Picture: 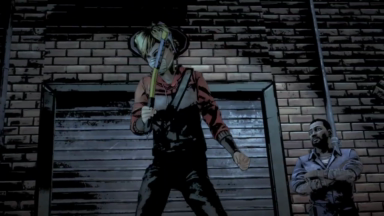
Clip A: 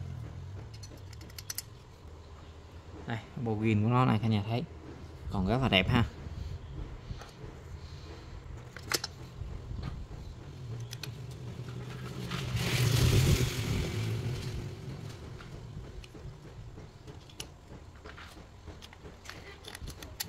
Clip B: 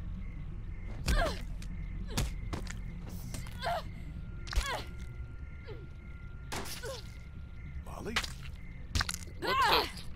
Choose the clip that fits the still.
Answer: B